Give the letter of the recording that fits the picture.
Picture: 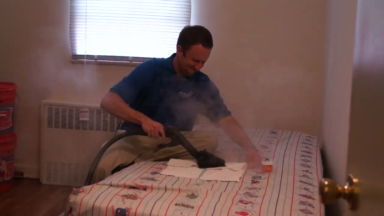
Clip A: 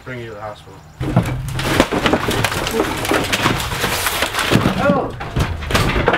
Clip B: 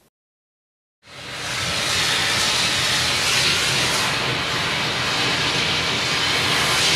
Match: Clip B